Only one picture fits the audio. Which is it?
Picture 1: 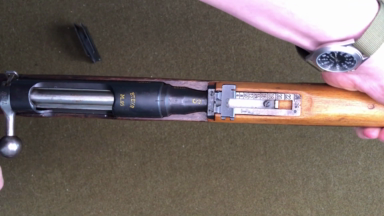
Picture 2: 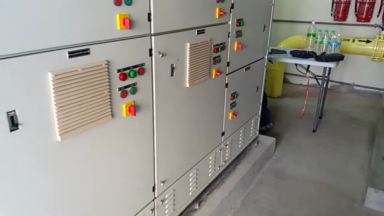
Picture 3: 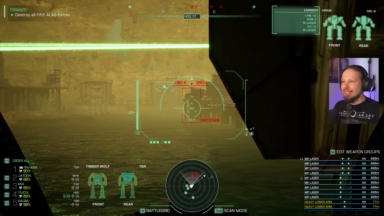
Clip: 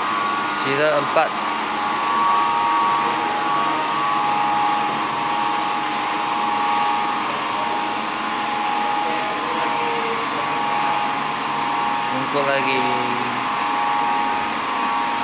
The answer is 2